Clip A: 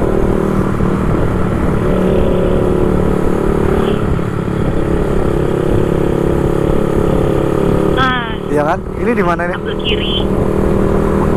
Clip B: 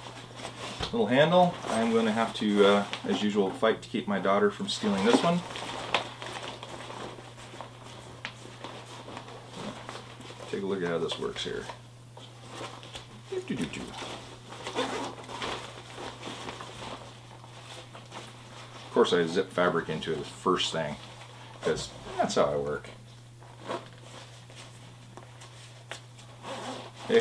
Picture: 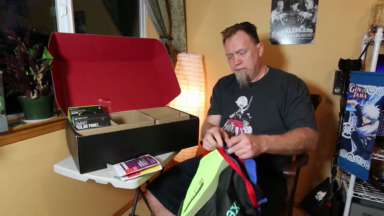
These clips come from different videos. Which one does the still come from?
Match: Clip B